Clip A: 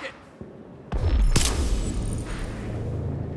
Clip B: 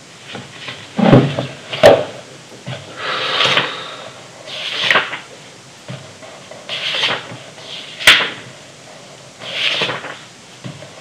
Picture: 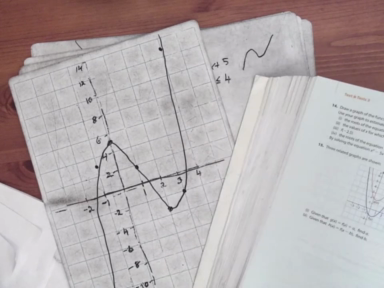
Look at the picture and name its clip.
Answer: B